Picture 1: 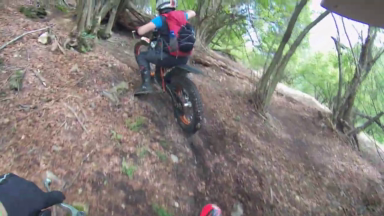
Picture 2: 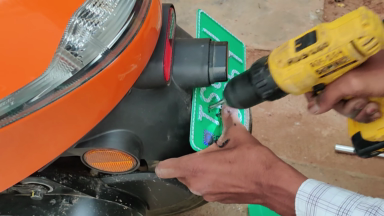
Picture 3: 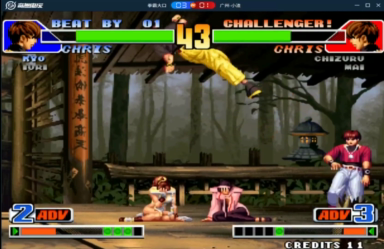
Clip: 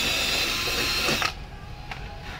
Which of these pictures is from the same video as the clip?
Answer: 2